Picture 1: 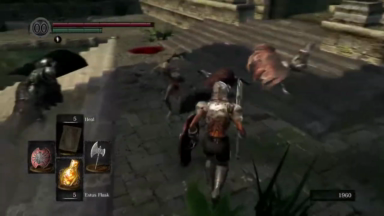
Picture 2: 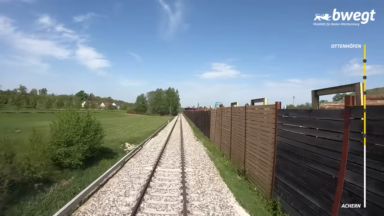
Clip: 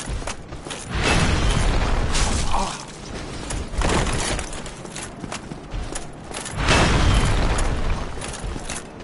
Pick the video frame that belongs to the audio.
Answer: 1